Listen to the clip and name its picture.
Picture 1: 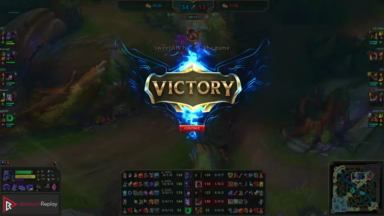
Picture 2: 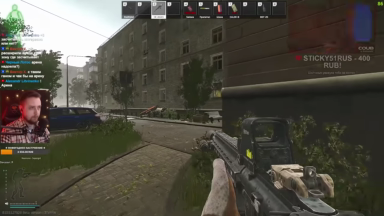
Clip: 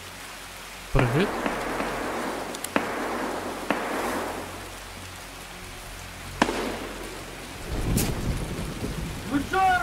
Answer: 2